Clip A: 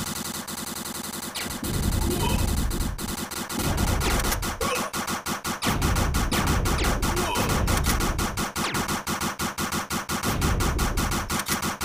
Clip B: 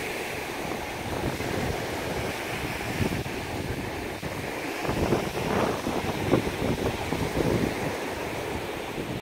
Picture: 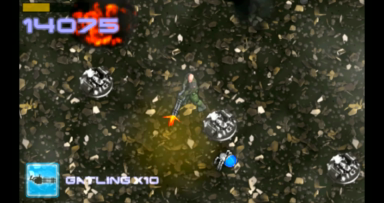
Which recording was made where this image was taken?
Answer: A